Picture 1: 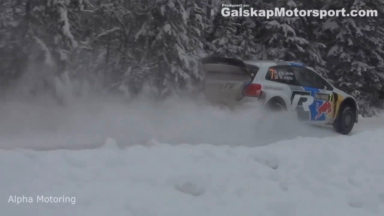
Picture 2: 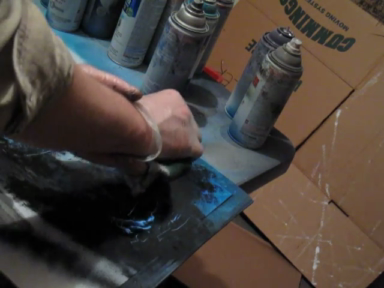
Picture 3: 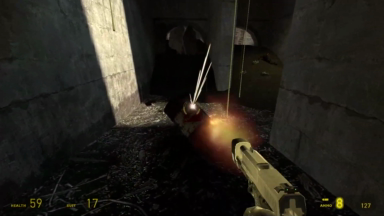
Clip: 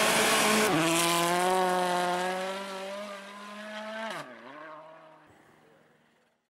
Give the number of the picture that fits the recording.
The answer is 1